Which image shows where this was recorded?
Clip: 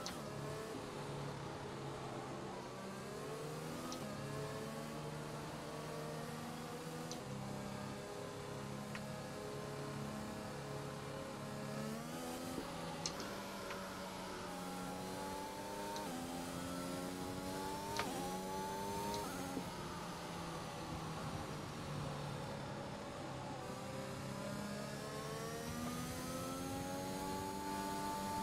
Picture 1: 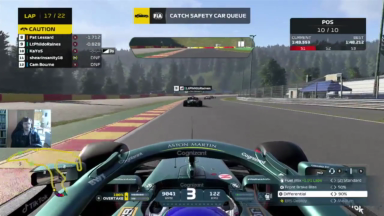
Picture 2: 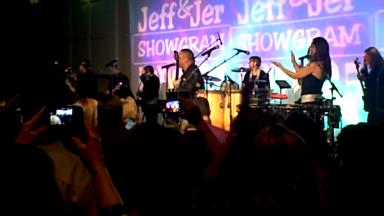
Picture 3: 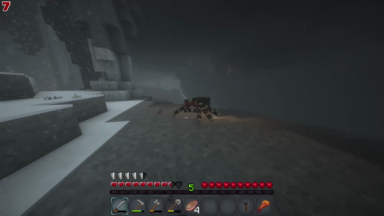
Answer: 1